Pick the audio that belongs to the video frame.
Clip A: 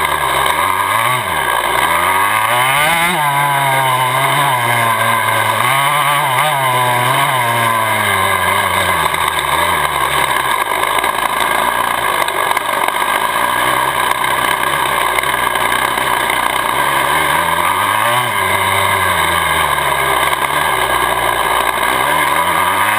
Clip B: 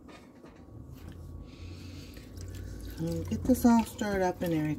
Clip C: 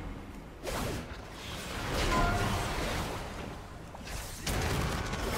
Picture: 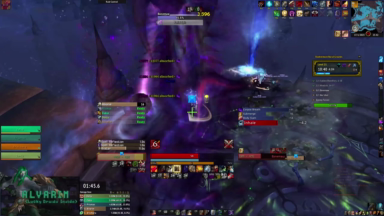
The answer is C